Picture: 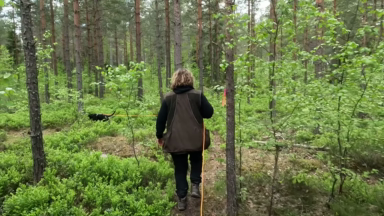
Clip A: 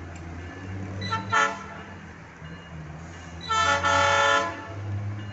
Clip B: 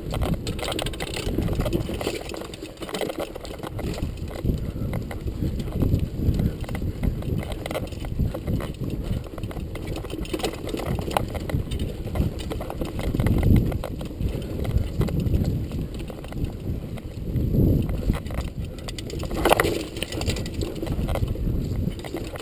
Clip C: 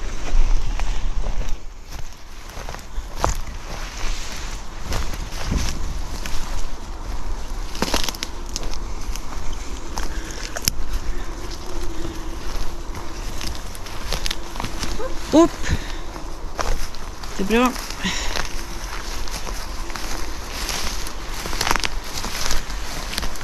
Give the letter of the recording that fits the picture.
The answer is C